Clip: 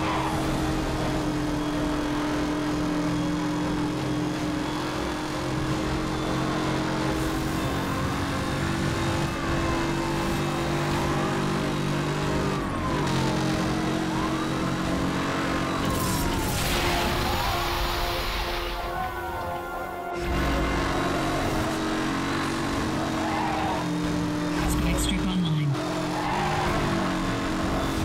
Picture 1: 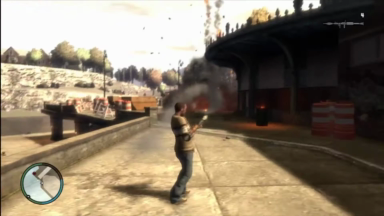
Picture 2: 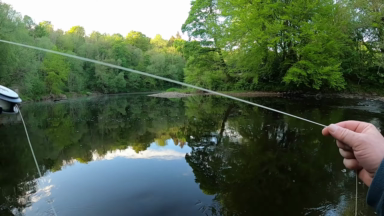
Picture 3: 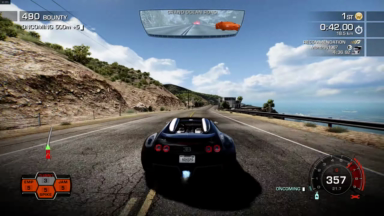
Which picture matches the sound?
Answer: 3